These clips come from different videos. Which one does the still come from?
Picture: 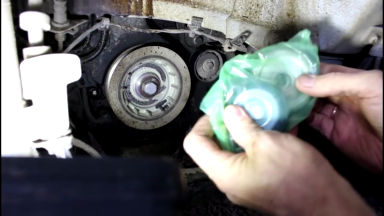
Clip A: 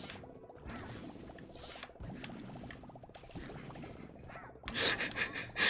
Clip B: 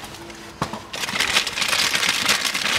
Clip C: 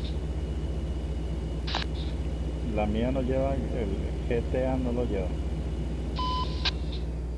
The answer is B